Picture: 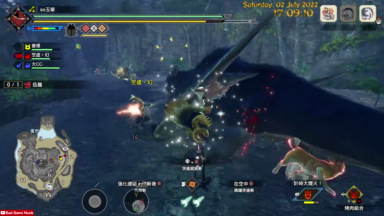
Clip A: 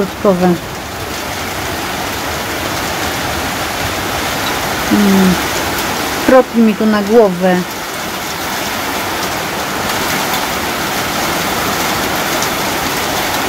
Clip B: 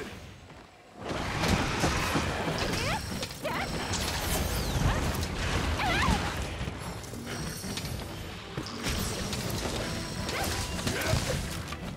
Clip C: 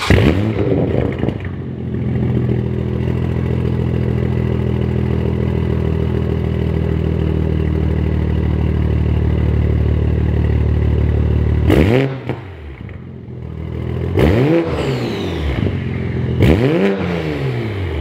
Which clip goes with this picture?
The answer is B